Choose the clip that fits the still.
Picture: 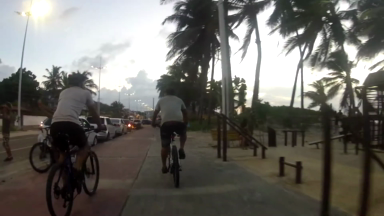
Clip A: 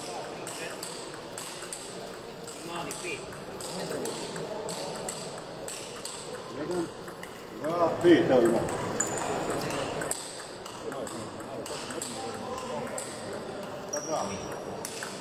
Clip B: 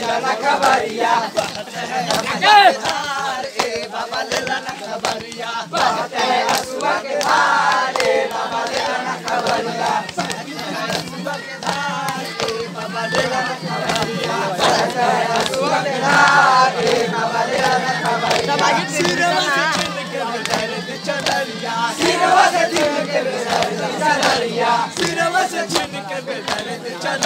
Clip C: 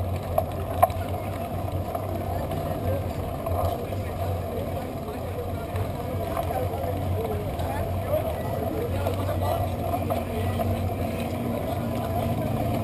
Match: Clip C